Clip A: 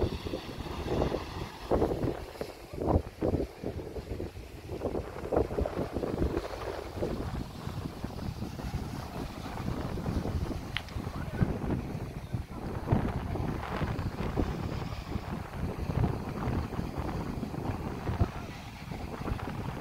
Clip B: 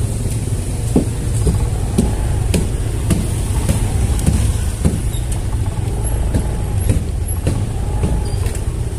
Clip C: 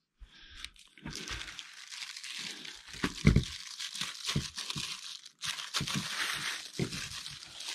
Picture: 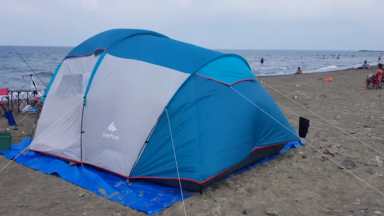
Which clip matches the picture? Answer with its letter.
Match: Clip A